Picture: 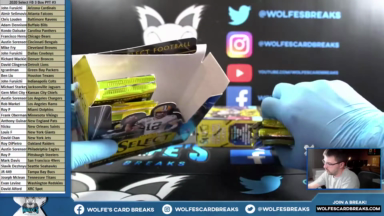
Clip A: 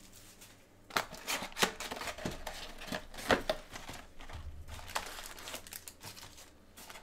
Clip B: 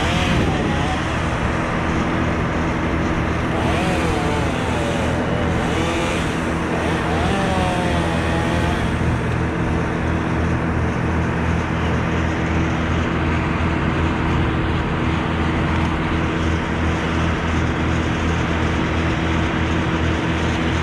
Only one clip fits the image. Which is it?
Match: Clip A